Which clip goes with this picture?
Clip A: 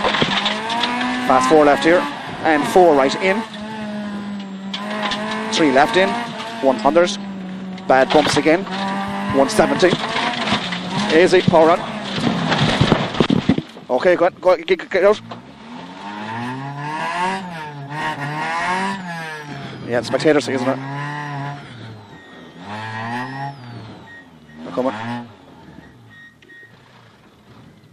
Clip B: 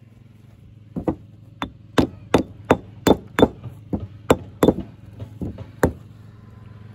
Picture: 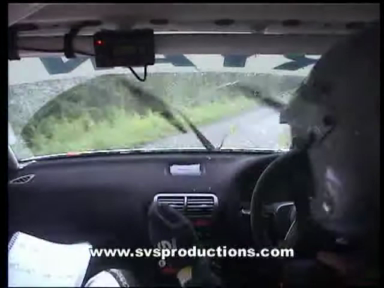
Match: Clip A